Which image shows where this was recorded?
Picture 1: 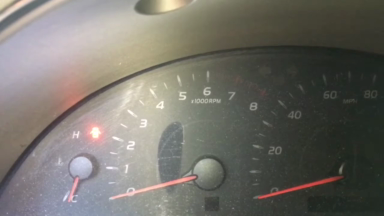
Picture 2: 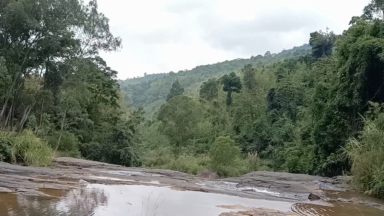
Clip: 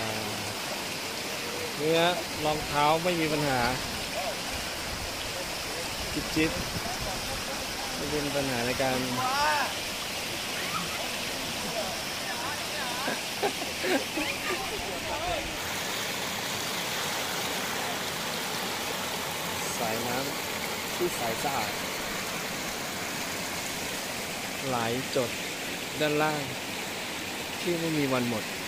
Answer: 2